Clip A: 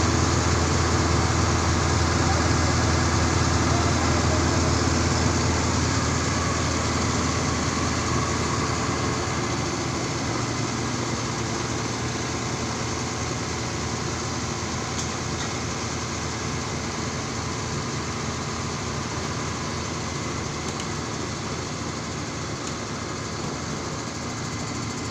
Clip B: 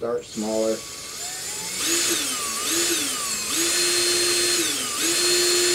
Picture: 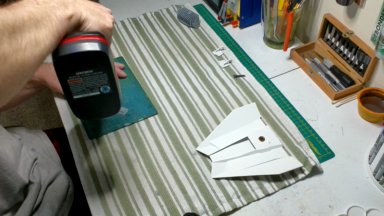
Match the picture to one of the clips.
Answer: B